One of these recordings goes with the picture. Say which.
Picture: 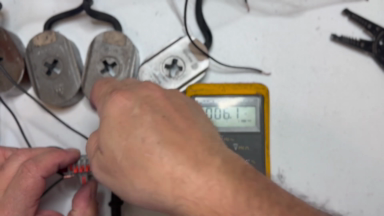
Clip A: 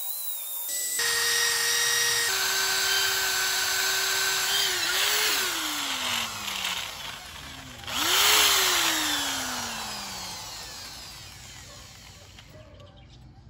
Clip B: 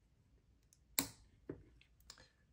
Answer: B